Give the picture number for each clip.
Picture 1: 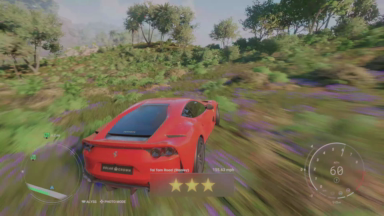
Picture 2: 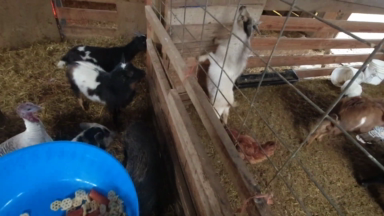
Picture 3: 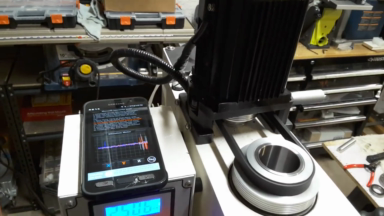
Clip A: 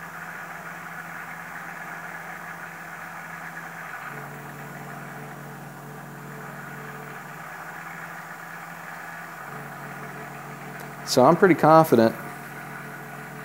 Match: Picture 3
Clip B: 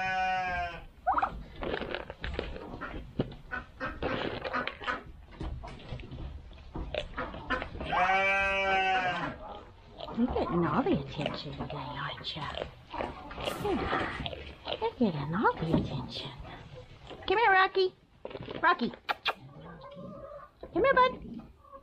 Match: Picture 2